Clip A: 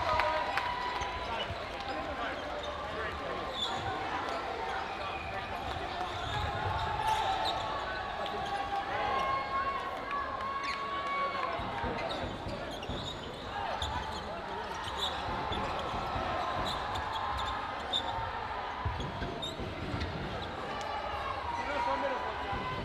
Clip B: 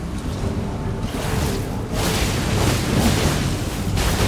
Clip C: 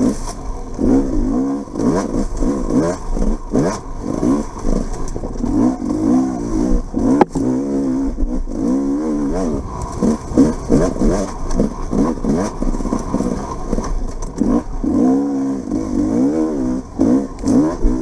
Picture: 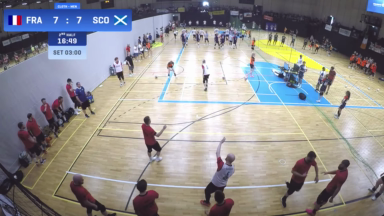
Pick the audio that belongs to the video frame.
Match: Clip A